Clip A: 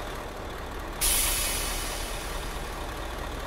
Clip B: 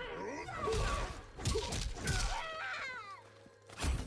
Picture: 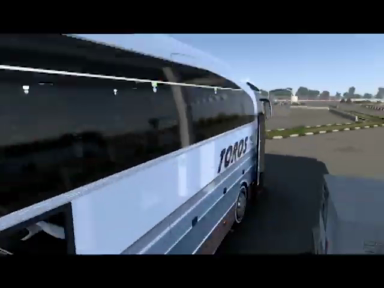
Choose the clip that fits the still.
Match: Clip A